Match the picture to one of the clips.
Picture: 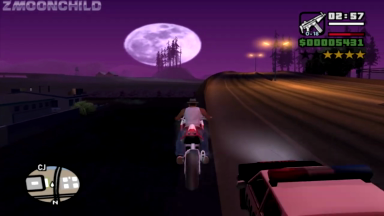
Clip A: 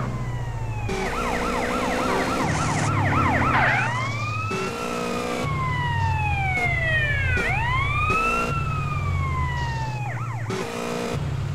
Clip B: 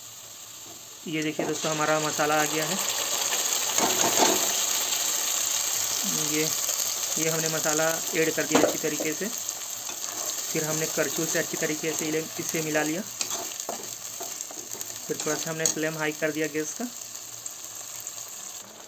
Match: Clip A